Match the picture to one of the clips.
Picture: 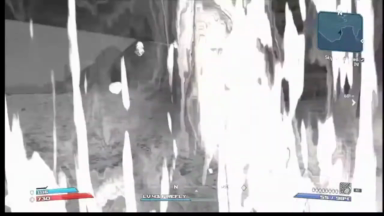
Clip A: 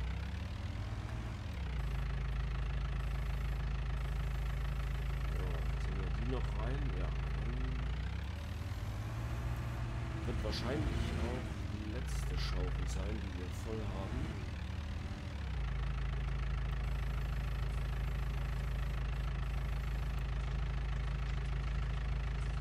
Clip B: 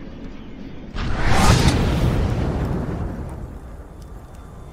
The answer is B